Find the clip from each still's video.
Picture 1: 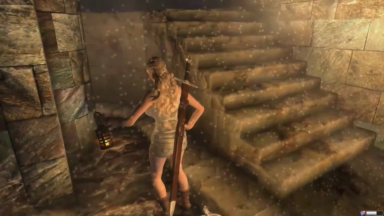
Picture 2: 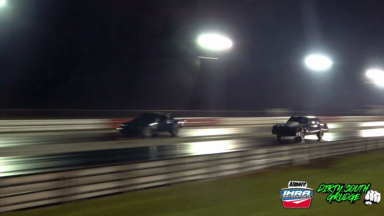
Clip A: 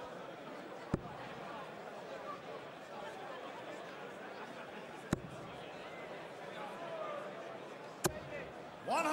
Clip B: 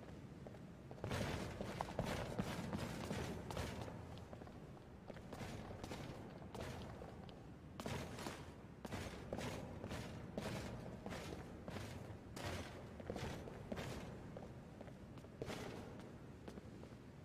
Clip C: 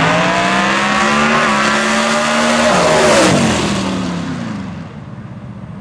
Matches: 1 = B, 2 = C